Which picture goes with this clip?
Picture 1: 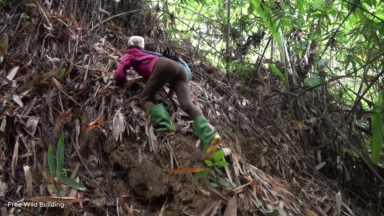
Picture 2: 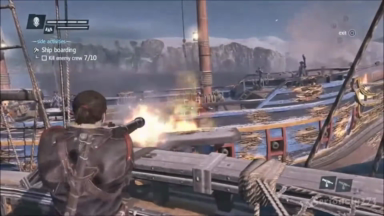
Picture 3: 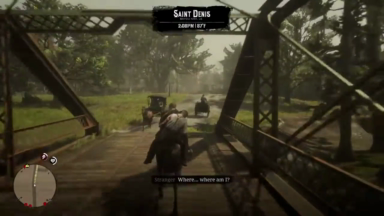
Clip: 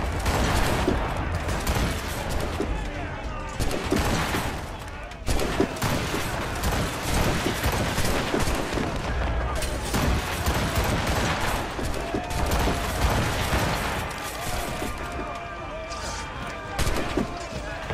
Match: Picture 2